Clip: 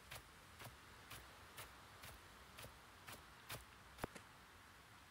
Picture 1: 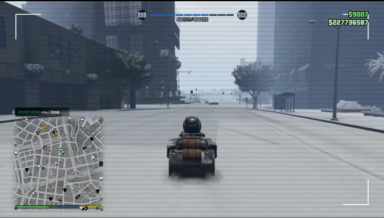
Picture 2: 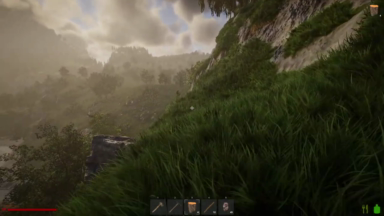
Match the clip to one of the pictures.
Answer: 2